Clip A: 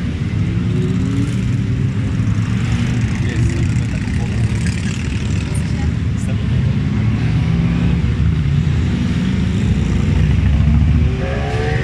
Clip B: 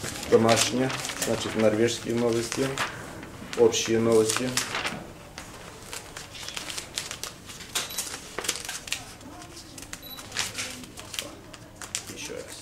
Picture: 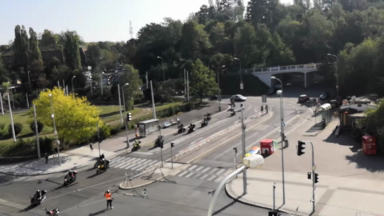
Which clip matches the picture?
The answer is A